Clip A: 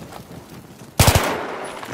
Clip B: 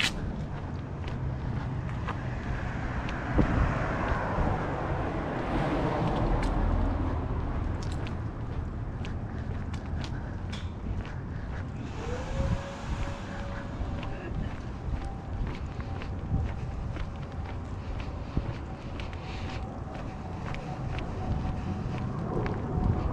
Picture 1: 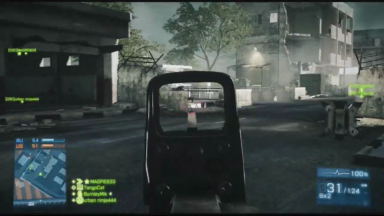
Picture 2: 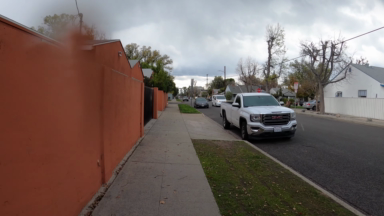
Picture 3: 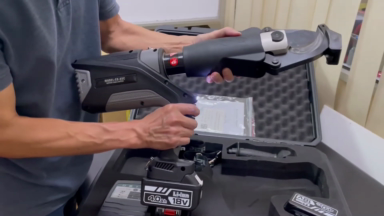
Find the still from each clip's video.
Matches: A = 1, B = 2